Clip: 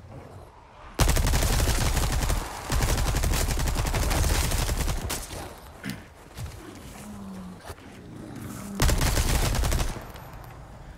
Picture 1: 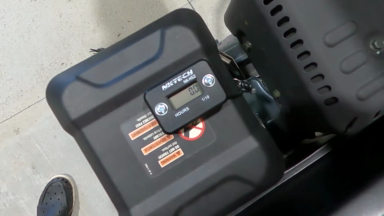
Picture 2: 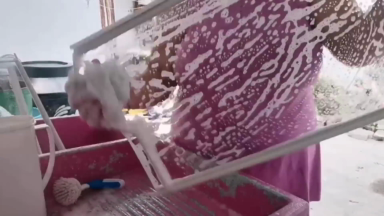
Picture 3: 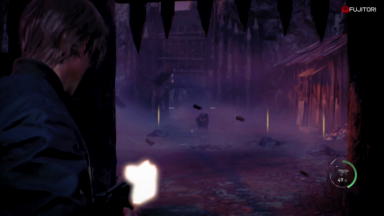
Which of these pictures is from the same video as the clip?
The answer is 3